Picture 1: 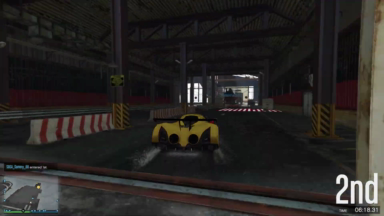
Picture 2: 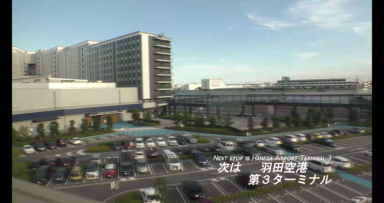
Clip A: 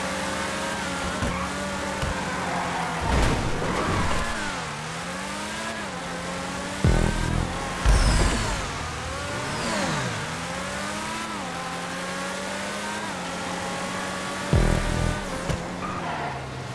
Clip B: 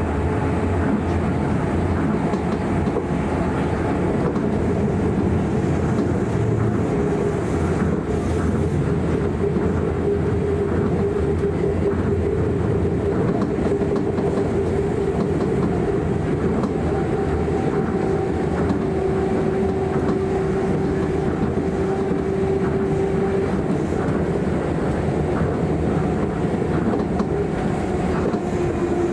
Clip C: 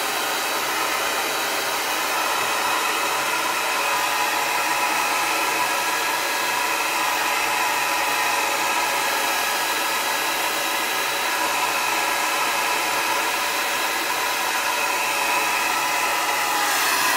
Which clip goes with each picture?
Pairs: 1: A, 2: B